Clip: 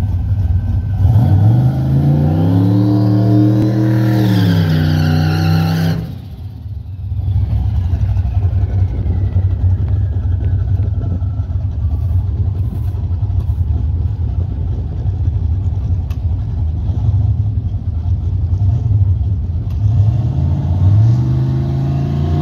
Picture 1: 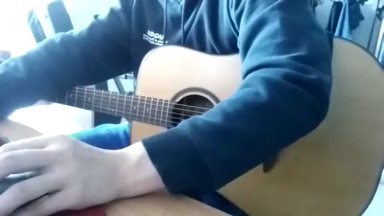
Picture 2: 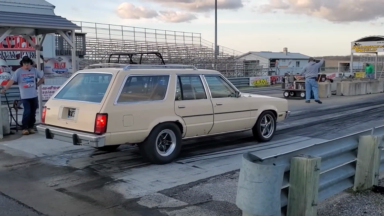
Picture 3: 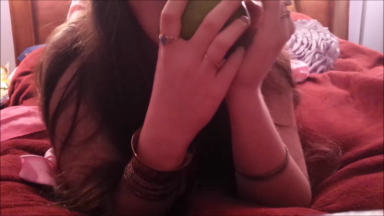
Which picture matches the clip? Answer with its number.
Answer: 2